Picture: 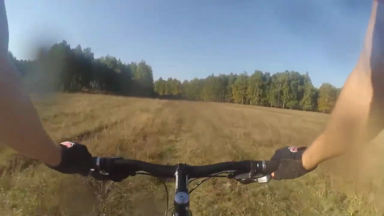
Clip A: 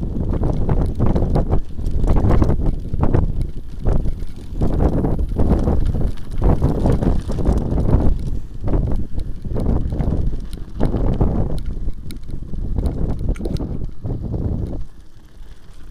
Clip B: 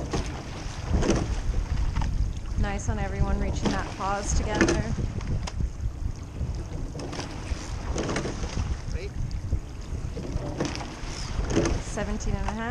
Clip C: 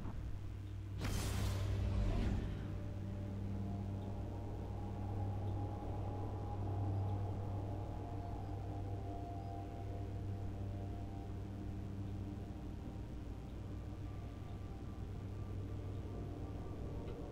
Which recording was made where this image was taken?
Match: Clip A